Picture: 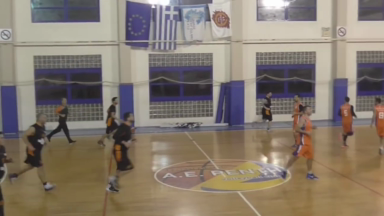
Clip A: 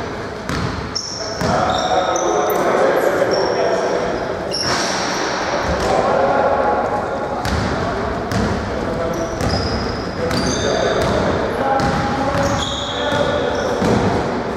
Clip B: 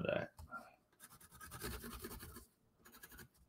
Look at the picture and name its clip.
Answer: A